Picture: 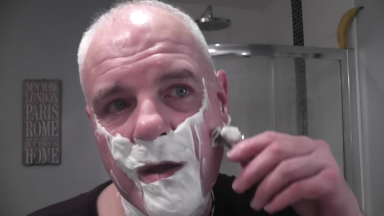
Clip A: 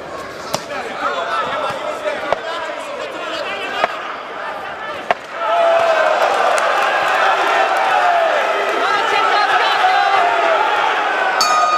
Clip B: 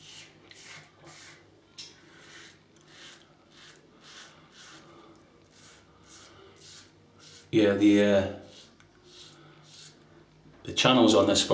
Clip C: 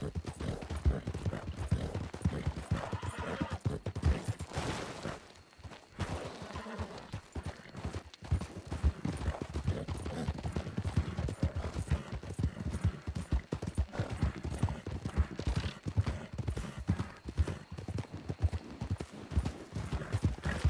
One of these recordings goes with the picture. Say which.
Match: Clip B